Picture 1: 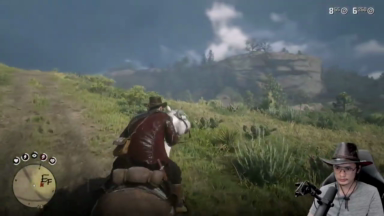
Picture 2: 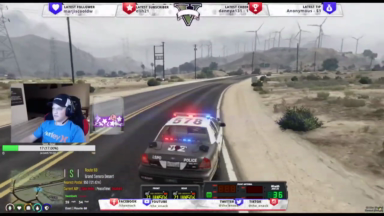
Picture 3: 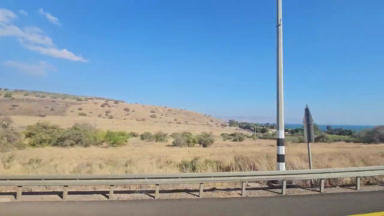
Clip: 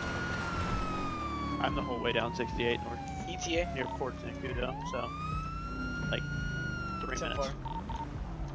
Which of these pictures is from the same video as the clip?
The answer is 2